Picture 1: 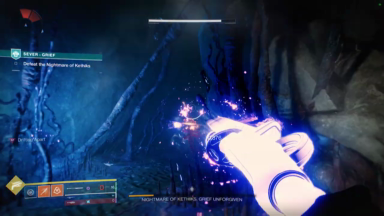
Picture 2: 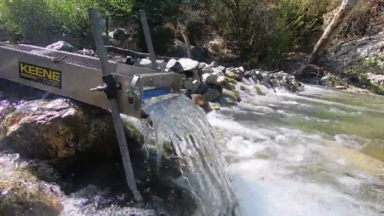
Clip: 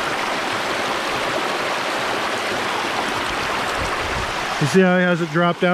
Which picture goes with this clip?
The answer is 2